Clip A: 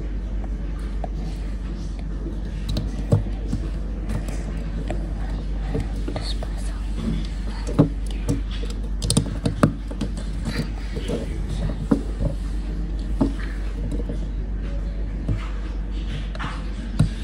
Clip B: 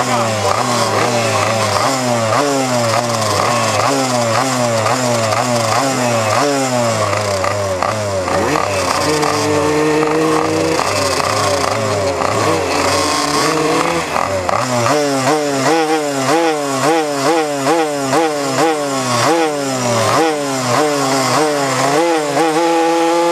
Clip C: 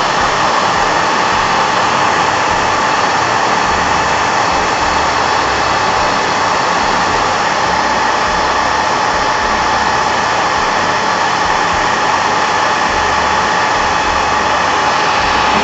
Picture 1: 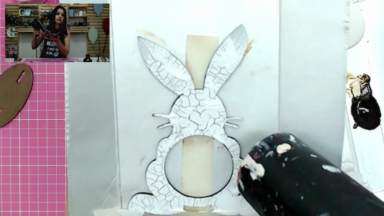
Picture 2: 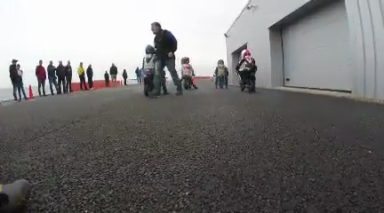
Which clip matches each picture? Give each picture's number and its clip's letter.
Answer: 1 C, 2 B